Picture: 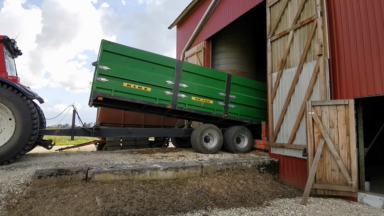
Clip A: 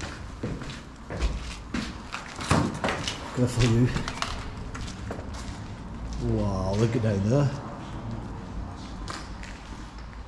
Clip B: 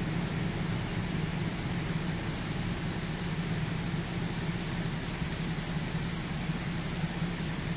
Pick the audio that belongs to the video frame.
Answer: B